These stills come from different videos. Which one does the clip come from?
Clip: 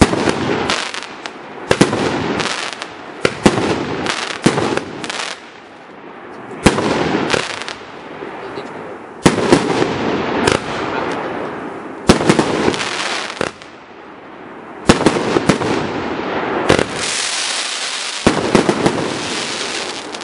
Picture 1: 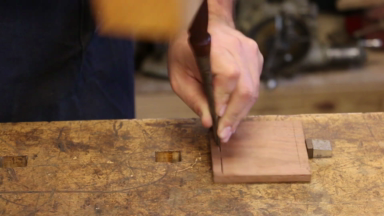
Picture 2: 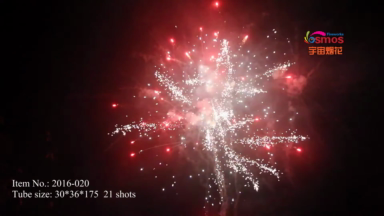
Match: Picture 2